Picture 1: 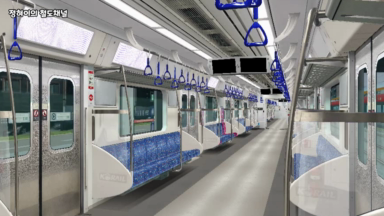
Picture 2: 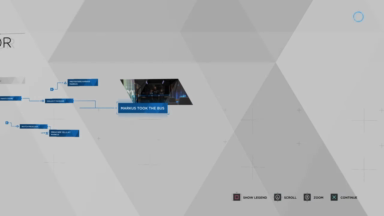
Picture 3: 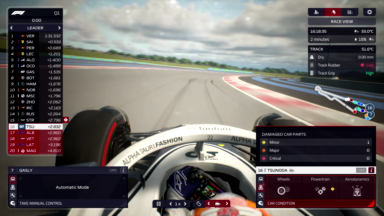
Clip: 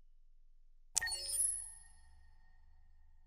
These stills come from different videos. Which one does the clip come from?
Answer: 2